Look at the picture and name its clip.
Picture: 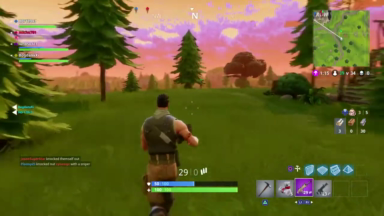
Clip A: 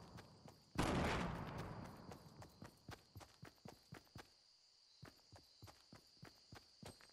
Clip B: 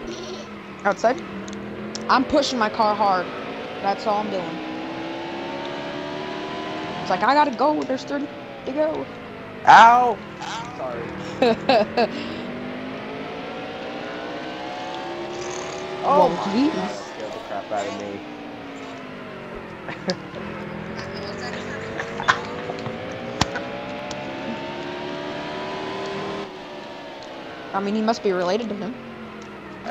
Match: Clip A